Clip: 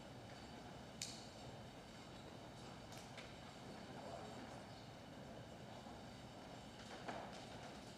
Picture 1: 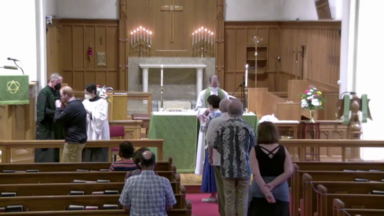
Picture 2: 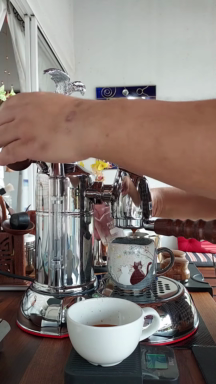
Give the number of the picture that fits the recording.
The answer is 1